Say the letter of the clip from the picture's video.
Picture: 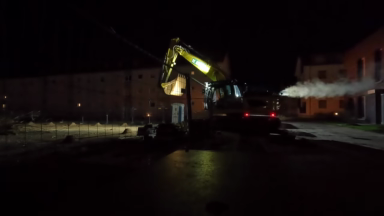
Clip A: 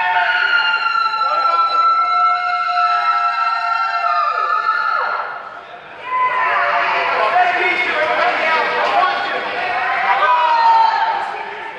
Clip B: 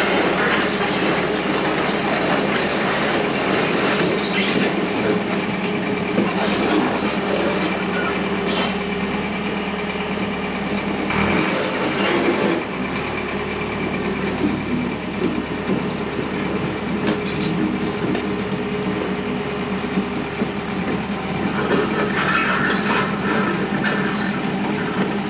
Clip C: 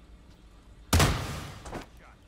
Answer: B